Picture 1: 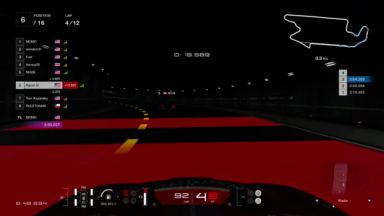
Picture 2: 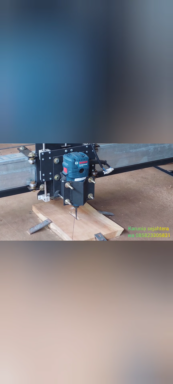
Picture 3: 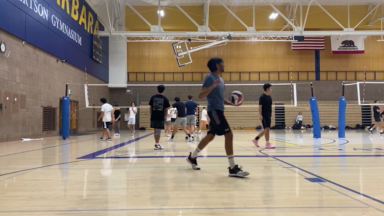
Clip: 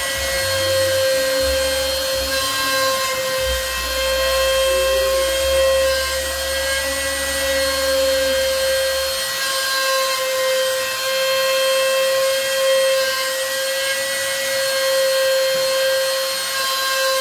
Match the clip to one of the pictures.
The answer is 2